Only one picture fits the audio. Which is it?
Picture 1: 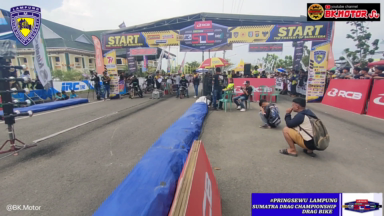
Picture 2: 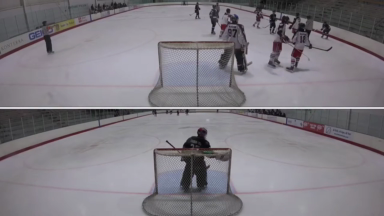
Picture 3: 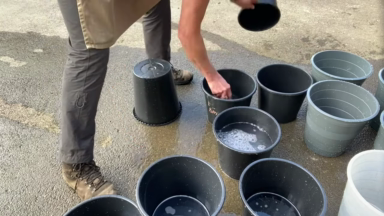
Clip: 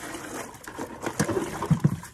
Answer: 3